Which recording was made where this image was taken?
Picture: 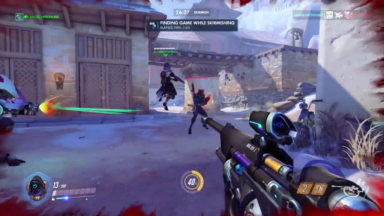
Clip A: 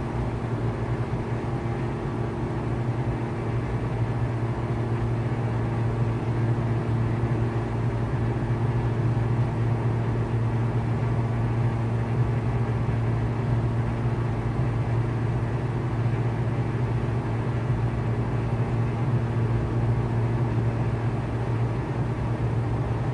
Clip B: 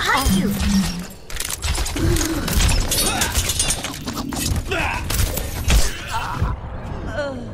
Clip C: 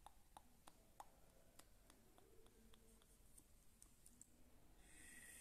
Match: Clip B